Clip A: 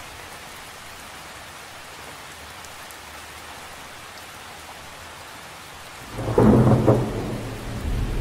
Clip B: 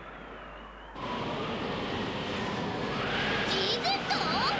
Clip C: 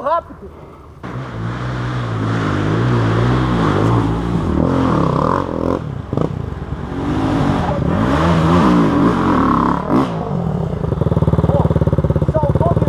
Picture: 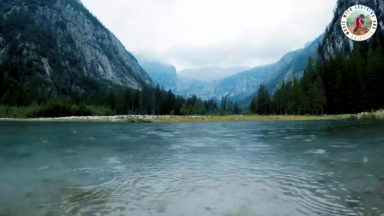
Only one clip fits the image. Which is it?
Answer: A